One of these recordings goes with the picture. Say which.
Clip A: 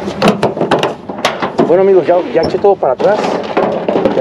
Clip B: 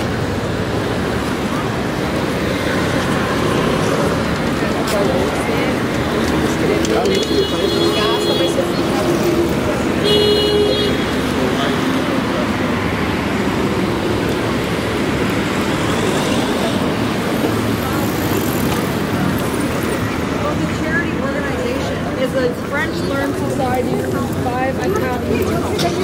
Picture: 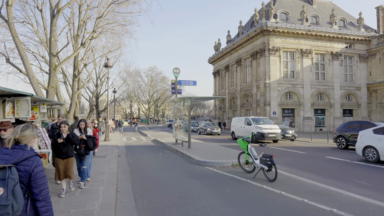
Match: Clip B